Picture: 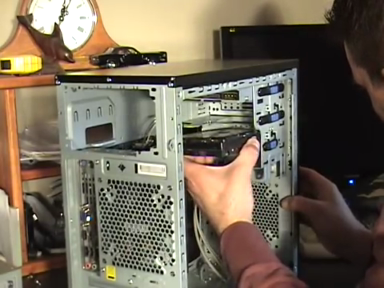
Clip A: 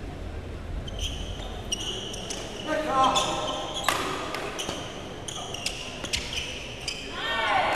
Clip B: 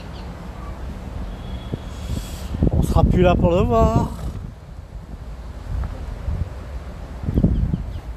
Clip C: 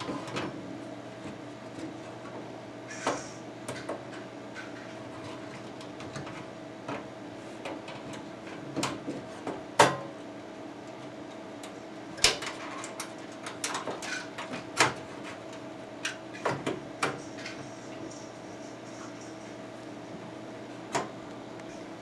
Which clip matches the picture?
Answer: C